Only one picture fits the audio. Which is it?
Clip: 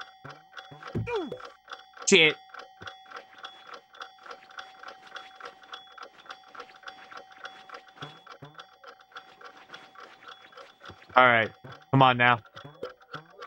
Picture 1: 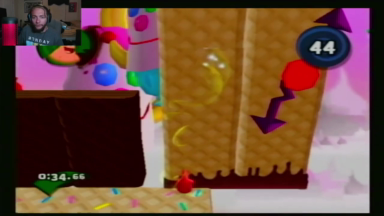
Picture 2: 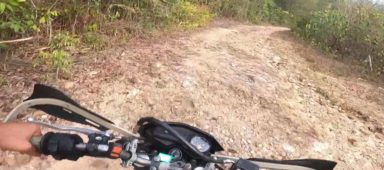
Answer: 1